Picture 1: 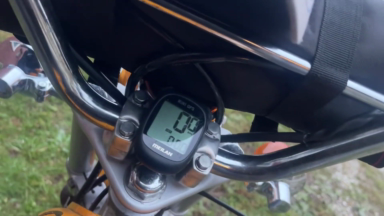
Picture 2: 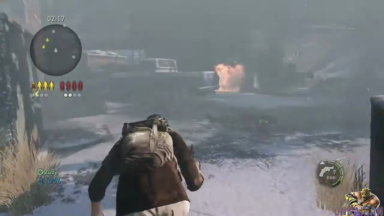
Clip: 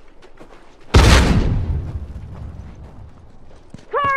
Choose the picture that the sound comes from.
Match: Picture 2